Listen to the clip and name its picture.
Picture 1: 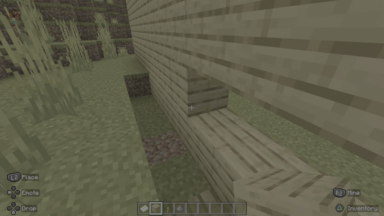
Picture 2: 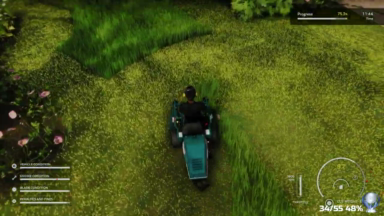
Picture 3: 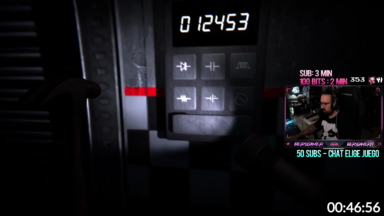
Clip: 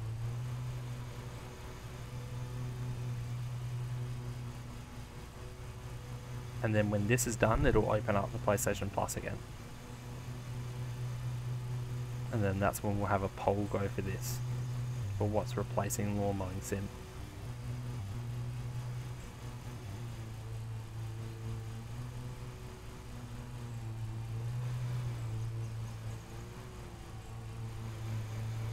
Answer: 2